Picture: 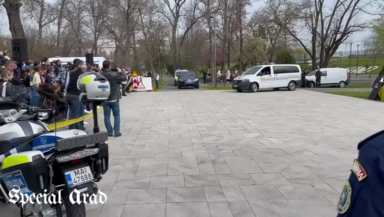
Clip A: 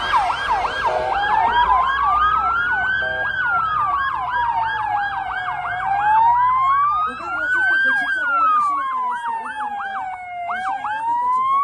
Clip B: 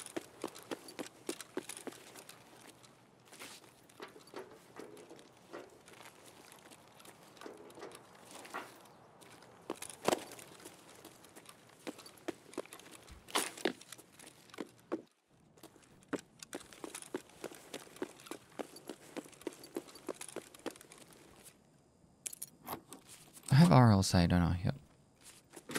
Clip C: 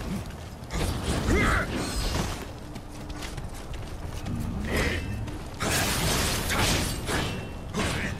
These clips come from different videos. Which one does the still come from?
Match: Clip A